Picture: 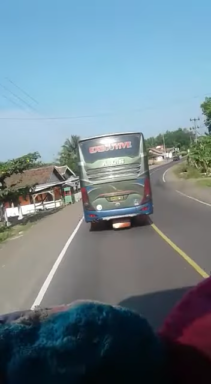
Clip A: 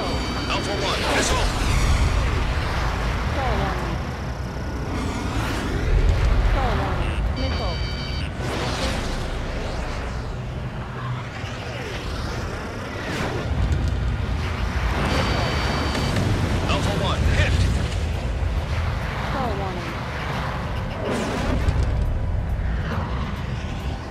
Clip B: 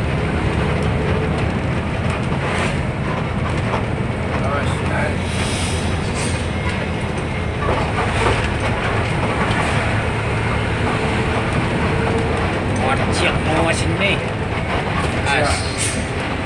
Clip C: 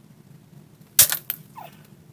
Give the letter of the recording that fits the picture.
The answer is B